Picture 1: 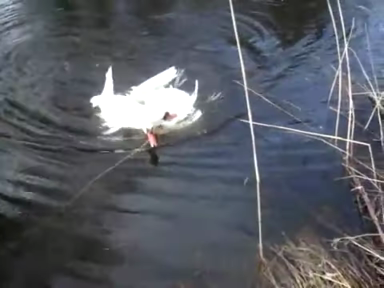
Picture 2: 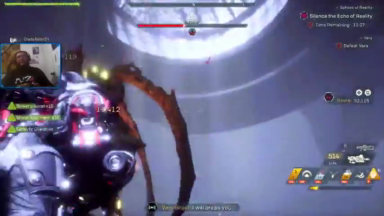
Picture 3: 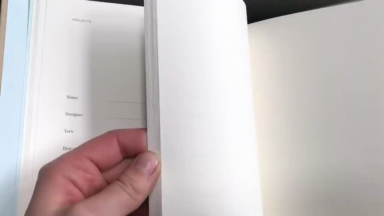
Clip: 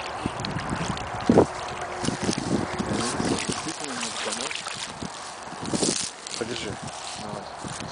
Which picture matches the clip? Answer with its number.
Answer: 1